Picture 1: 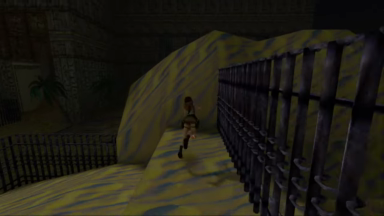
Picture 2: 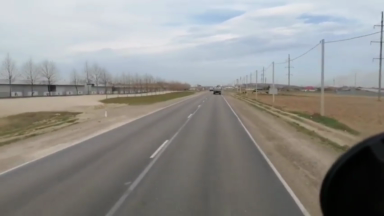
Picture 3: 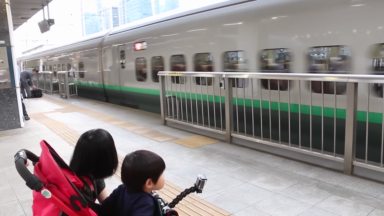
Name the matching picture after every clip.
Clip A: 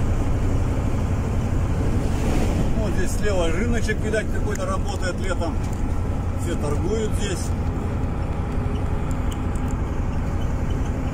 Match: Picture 2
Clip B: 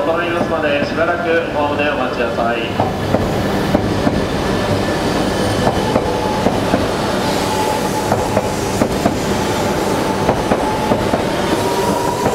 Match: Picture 3